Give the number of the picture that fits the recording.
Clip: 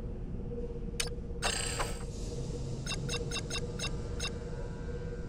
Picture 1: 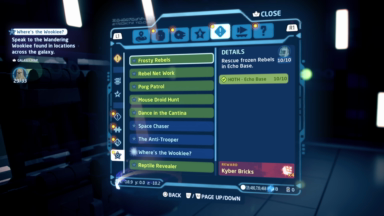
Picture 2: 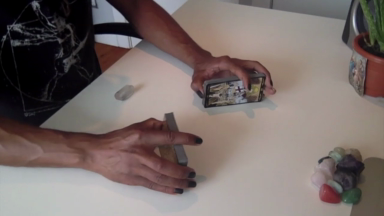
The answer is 1